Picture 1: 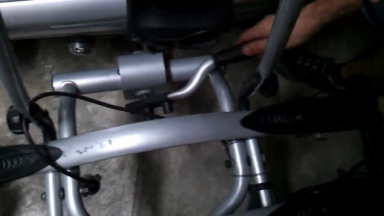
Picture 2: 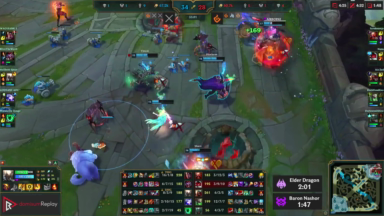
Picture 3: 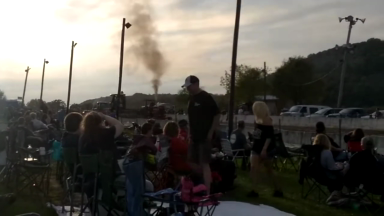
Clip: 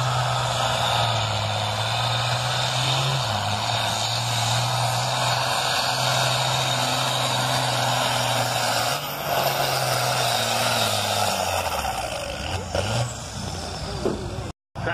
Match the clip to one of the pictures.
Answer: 3